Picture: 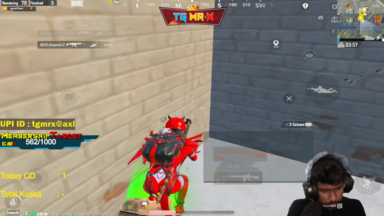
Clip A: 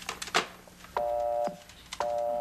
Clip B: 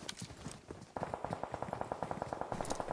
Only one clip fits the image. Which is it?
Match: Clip B